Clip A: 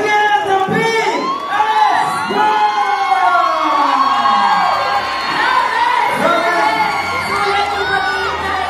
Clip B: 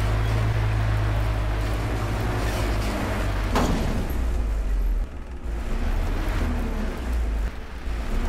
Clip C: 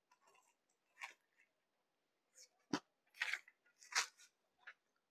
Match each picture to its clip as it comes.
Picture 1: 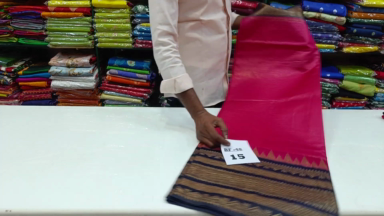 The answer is C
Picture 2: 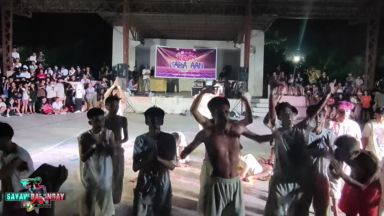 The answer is A